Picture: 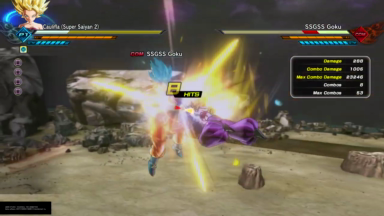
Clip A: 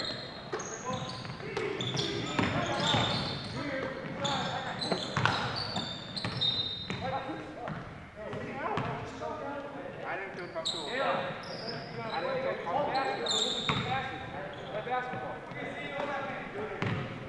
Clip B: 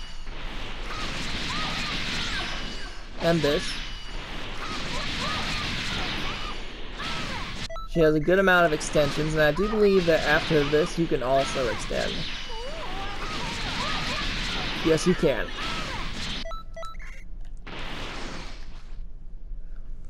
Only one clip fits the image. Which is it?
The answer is B